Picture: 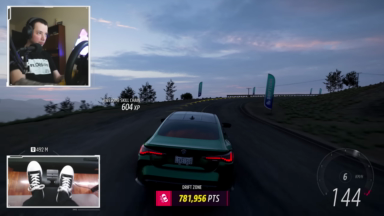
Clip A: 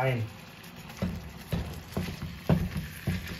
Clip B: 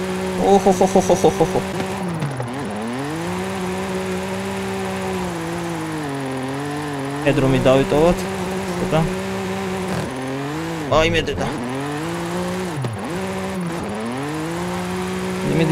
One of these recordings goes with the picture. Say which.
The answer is B